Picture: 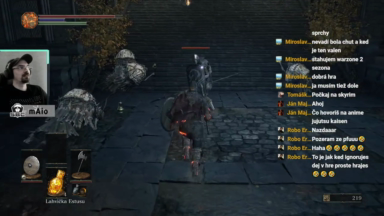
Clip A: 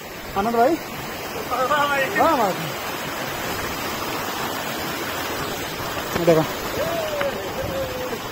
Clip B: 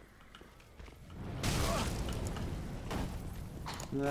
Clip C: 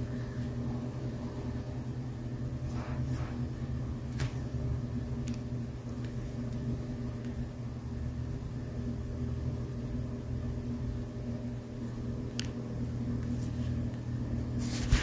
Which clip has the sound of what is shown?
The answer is B